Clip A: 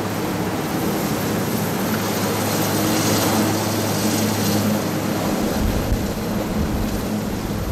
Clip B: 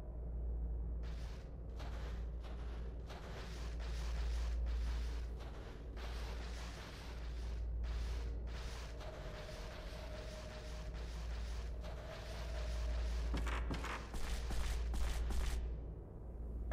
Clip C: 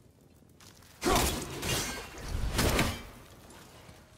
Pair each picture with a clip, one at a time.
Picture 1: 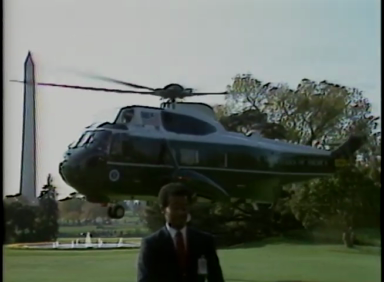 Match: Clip A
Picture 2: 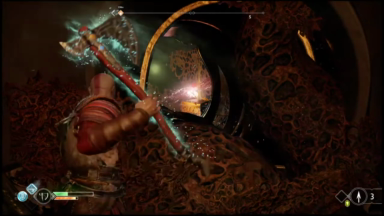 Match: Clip C